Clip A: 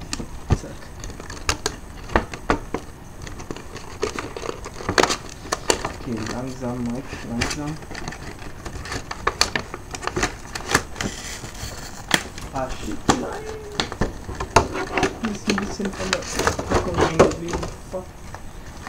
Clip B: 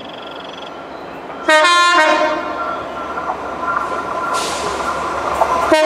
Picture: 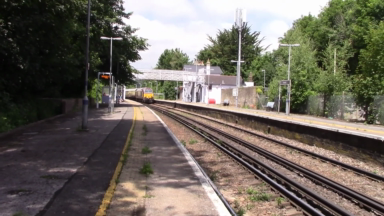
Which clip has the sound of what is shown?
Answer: B